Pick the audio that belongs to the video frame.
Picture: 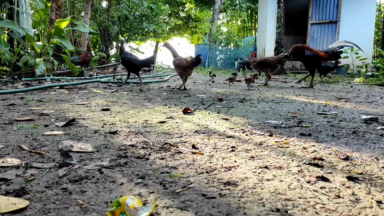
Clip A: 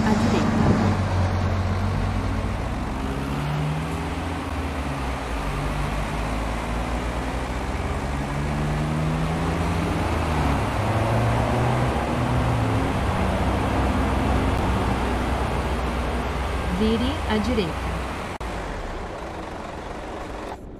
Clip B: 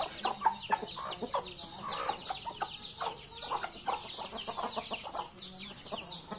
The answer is B